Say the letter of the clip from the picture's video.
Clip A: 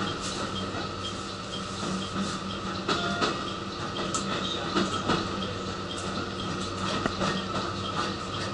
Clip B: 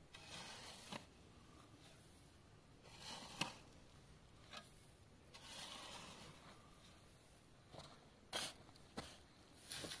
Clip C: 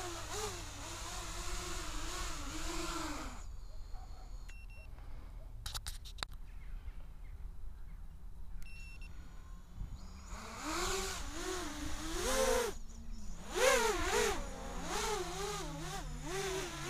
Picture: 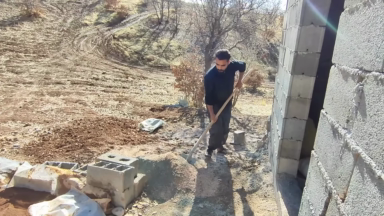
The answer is B